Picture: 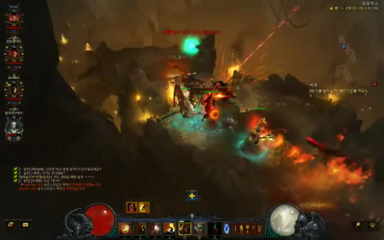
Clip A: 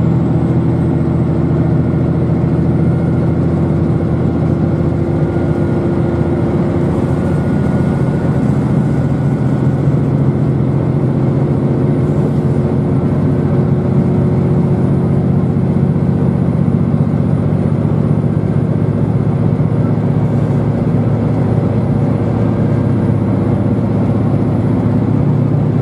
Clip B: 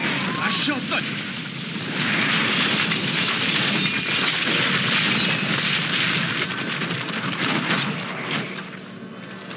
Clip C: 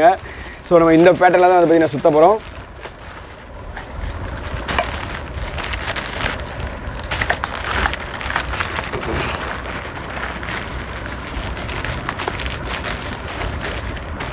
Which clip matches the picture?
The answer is B